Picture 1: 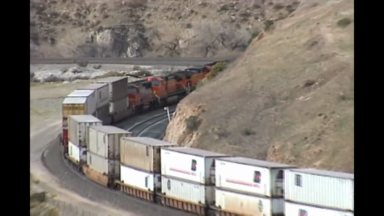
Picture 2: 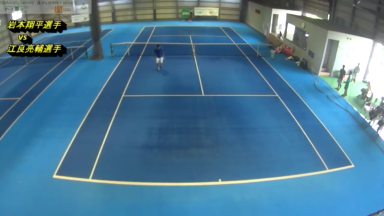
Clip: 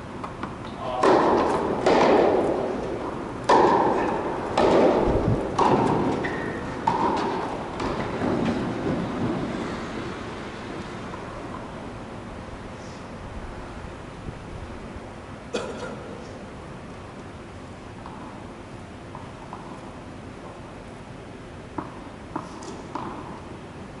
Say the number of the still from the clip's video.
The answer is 2